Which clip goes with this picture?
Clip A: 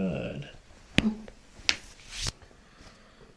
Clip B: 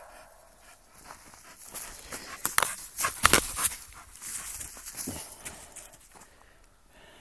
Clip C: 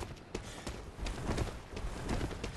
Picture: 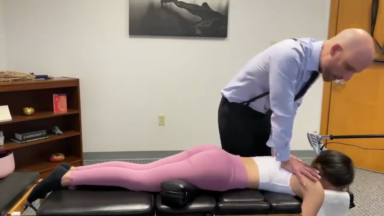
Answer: A